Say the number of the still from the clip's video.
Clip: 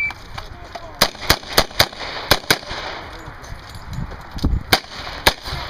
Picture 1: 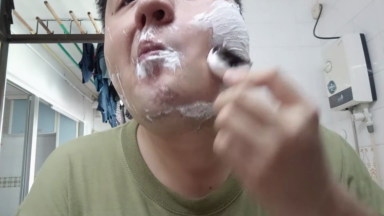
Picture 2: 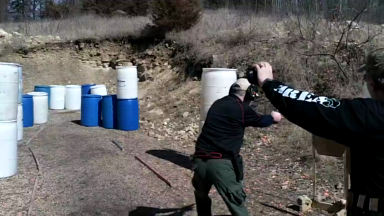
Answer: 2